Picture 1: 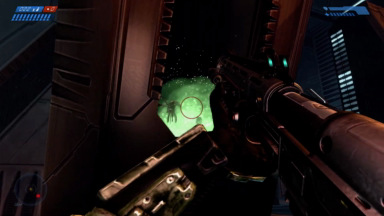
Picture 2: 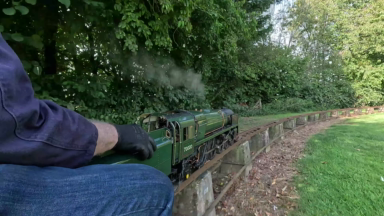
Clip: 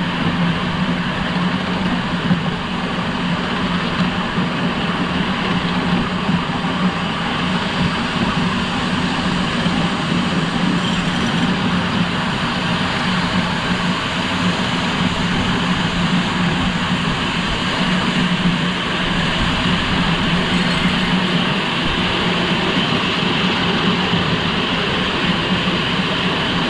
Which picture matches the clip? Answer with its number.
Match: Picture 2